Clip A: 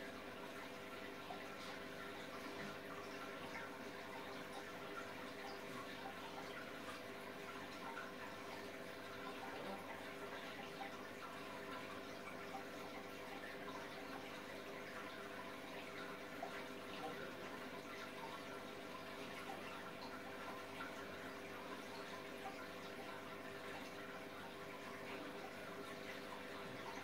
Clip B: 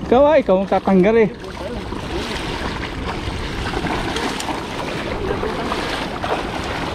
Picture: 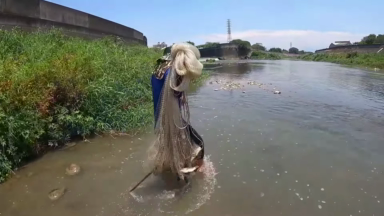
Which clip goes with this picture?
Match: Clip B